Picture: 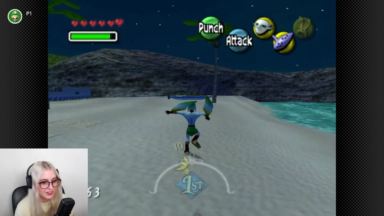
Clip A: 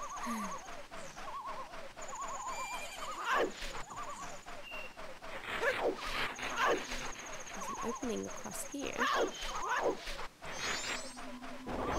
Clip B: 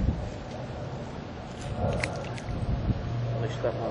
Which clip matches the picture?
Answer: A